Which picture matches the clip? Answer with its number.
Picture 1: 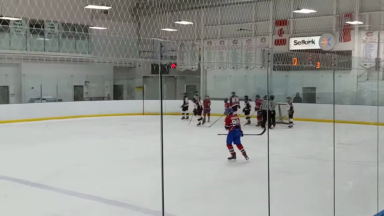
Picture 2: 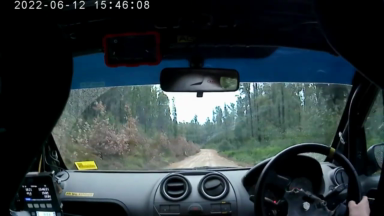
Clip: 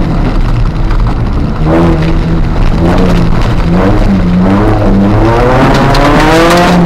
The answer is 2